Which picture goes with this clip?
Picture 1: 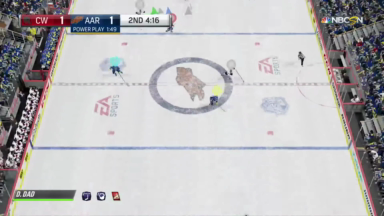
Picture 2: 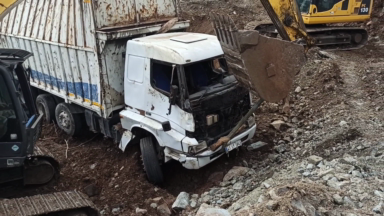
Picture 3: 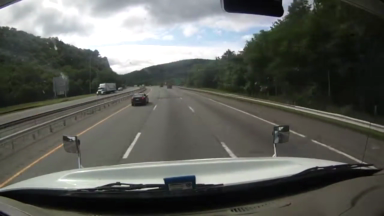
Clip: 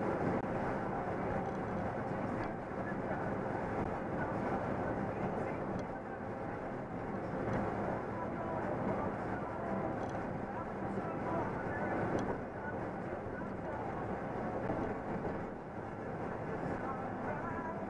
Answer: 3